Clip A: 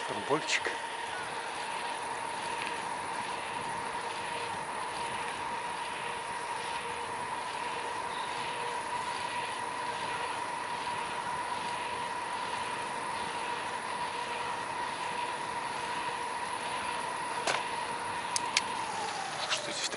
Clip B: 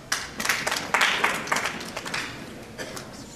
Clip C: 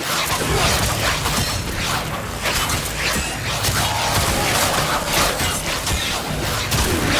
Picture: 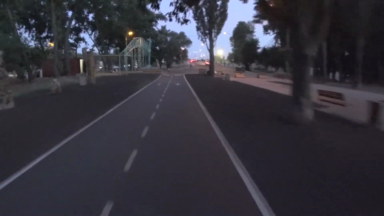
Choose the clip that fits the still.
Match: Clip A